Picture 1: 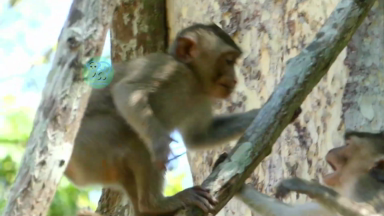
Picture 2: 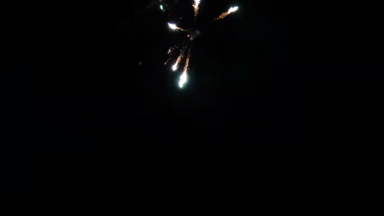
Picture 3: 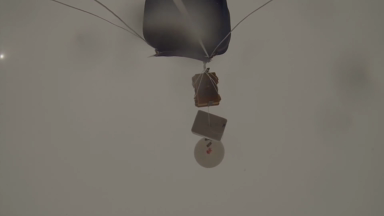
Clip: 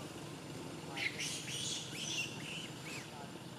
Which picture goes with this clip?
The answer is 1